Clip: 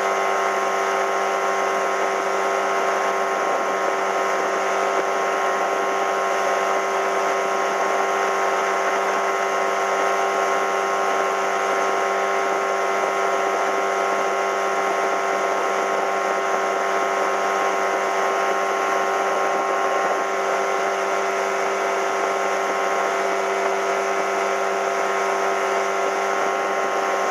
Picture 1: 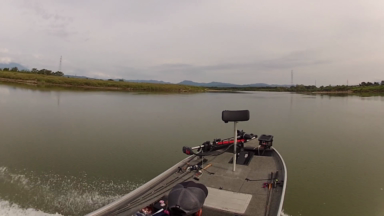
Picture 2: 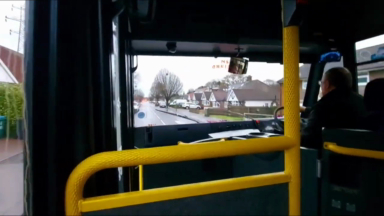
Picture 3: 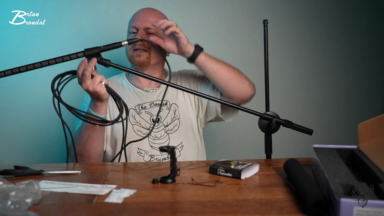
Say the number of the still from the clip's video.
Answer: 1